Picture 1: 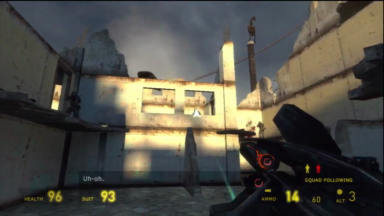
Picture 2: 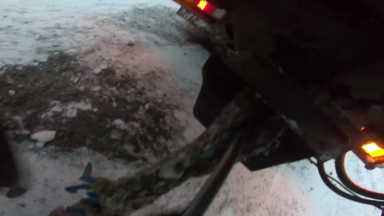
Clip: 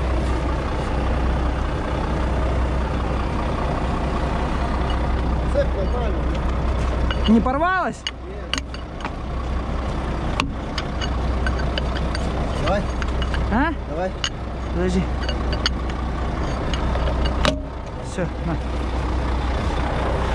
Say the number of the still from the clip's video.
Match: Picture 2